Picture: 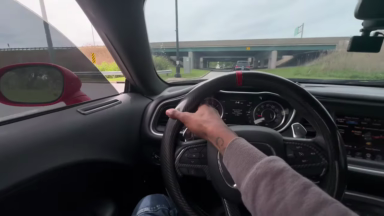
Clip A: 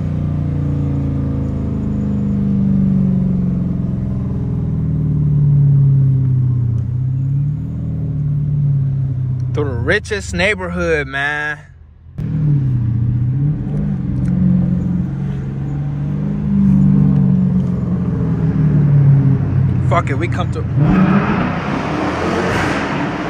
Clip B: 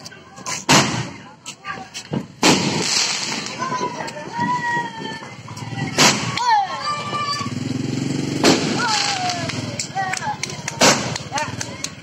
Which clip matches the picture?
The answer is A